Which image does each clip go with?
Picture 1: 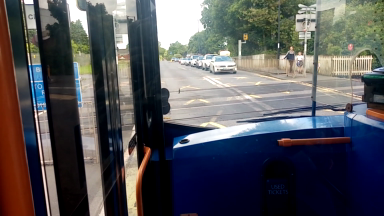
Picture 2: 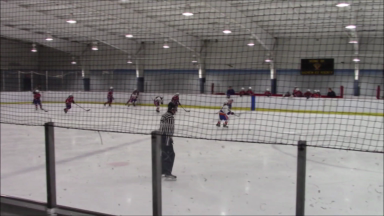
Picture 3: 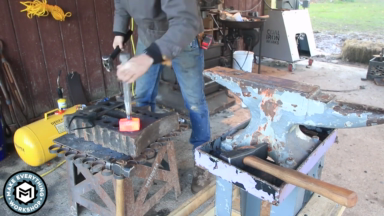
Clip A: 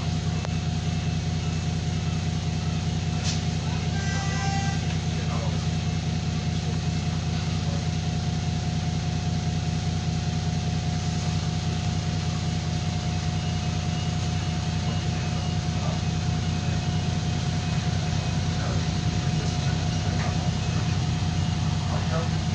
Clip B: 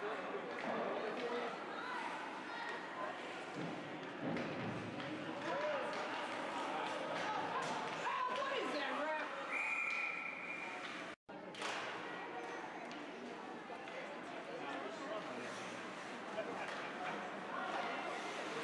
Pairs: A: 1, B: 2